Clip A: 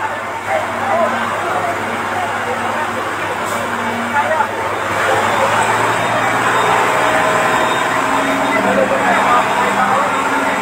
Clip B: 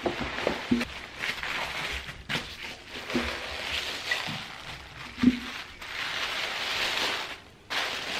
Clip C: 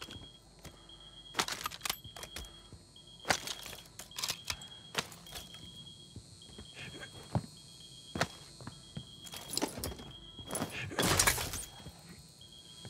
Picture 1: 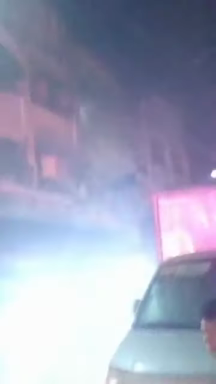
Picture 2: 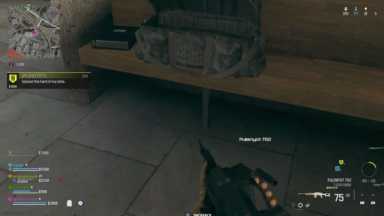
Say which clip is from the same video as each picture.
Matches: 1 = A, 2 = C